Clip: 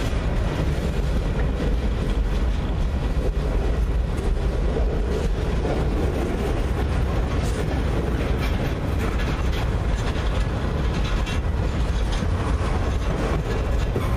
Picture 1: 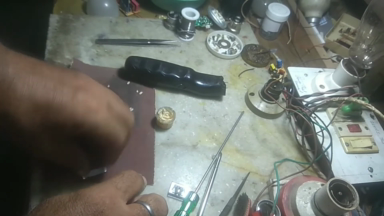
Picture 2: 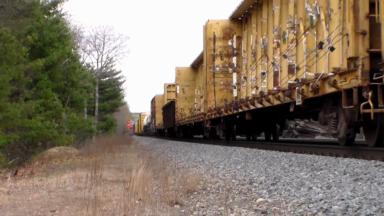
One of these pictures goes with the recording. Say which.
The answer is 2